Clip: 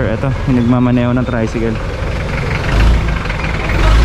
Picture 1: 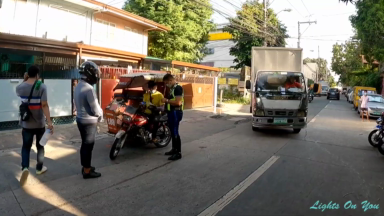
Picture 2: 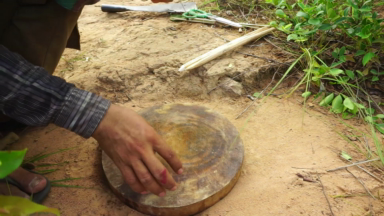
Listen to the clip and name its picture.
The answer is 1